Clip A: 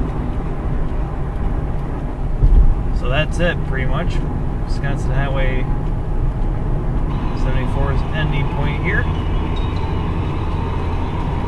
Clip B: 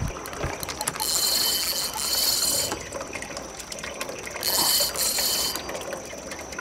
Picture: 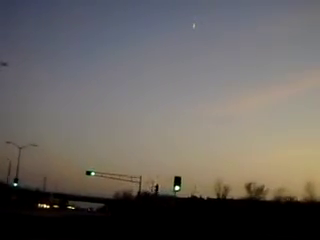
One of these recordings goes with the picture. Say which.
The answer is A